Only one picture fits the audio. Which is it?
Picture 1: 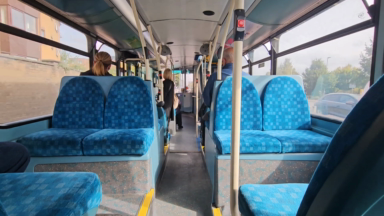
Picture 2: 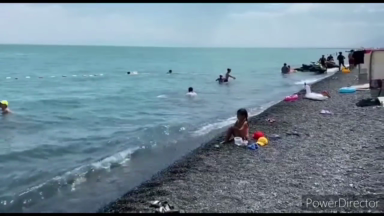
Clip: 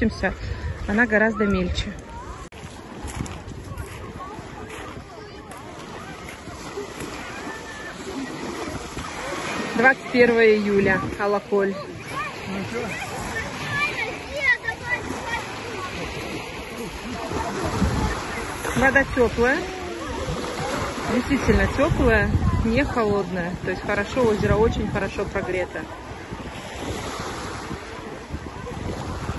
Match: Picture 2